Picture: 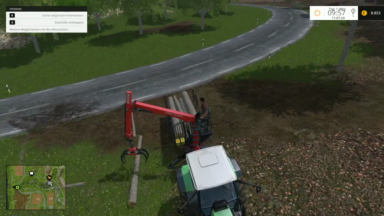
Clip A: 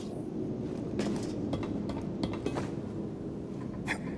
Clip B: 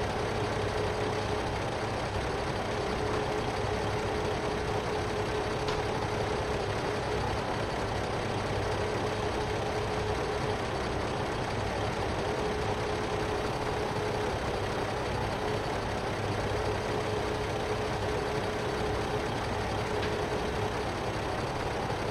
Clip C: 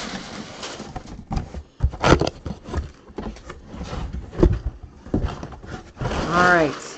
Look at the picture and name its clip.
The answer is B